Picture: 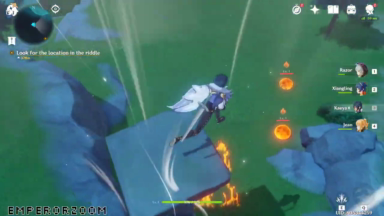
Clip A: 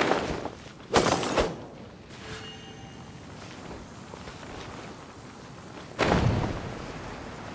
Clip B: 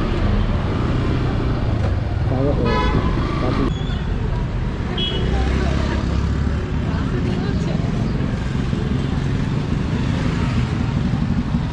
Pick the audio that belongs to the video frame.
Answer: A